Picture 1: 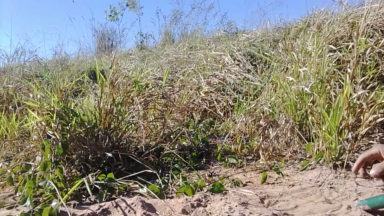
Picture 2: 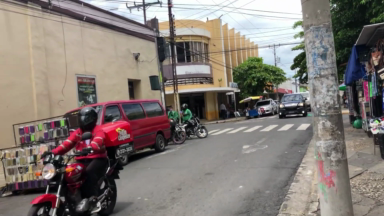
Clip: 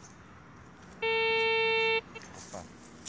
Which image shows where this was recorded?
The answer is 1